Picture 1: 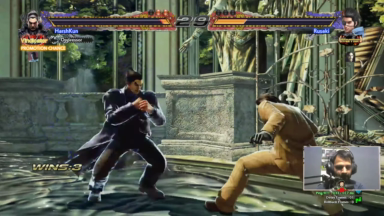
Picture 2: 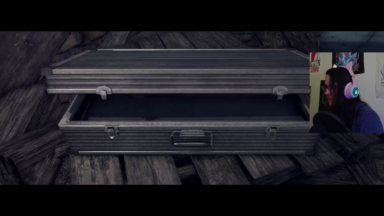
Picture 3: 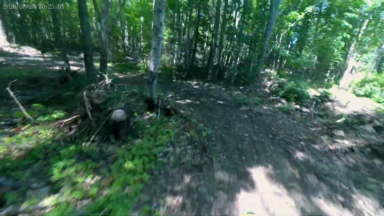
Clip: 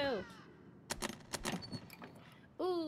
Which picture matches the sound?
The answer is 2